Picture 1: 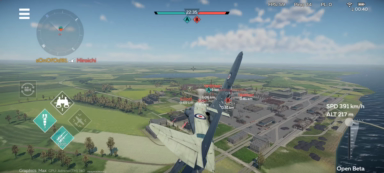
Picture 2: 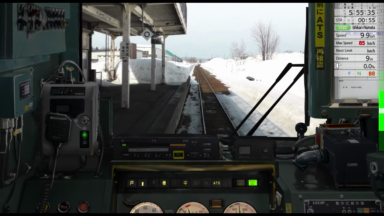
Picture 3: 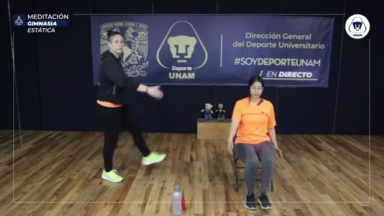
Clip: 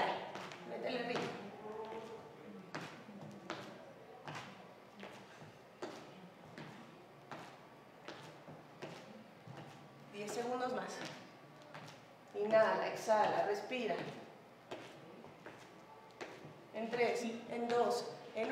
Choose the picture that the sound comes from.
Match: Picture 3